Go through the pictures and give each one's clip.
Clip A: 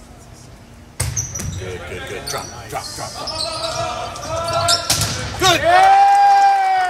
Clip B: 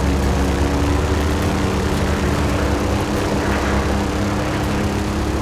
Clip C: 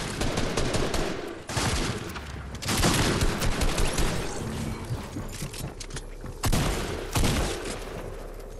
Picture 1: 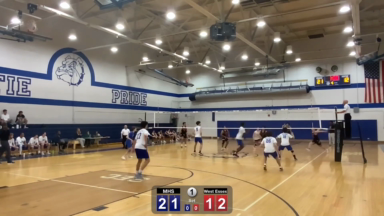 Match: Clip A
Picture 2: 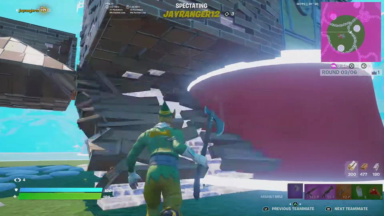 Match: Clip C